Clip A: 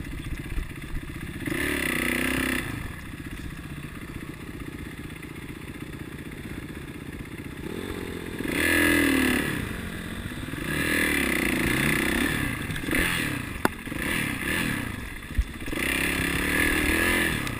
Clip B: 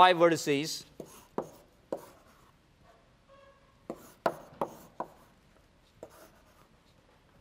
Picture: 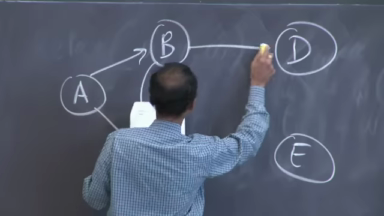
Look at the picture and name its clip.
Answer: B